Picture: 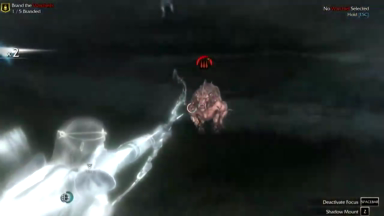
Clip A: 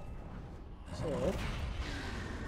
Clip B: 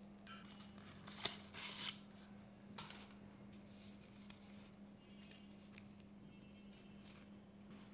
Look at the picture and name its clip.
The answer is A